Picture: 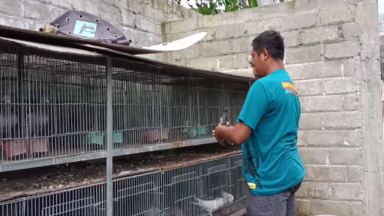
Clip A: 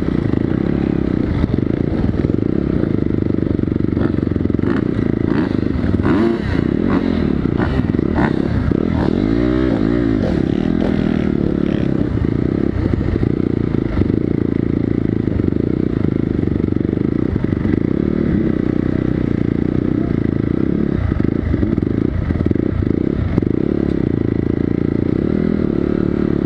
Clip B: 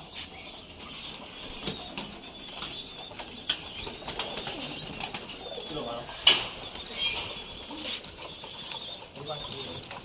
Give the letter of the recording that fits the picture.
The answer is B